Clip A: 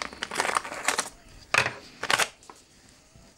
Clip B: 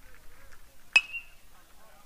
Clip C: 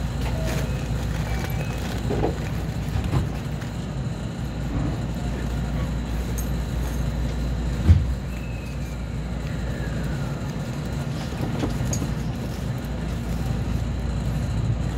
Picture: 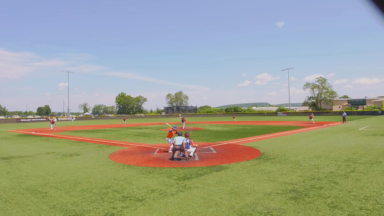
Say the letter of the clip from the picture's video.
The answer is B